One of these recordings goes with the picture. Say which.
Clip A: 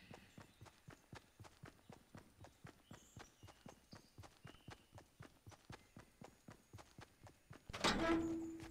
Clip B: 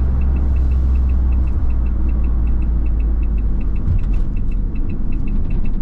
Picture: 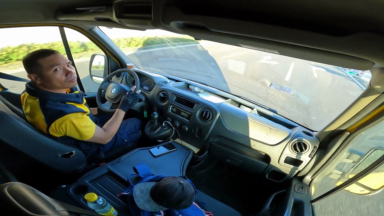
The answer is B